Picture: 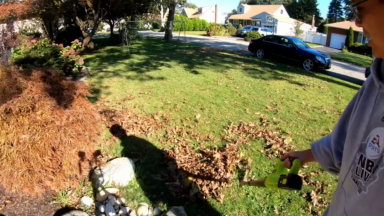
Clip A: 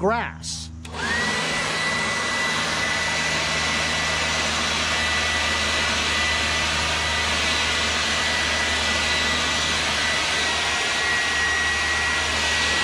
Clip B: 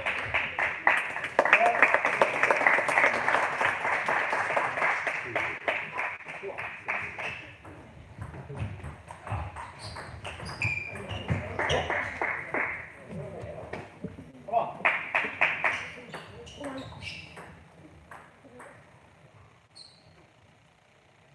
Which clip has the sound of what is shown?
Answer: A